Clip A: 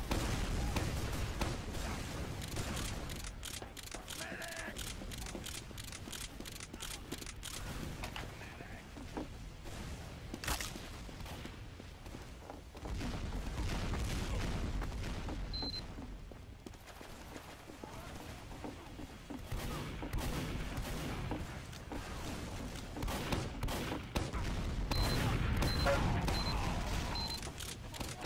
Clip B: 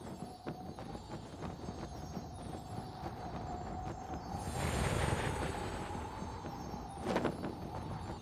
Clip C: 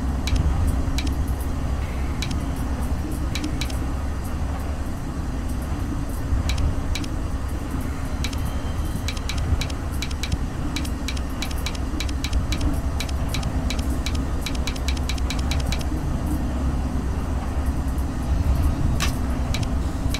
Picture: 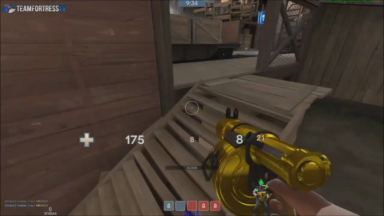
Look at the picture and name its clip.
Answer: A